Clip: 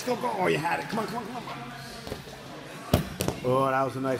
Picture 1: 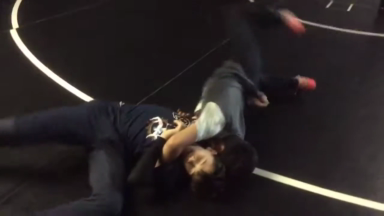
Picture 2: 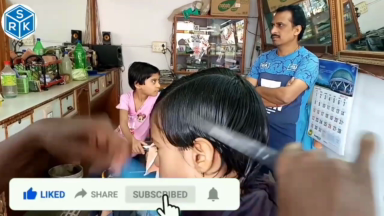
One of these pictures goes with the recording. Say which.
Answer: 1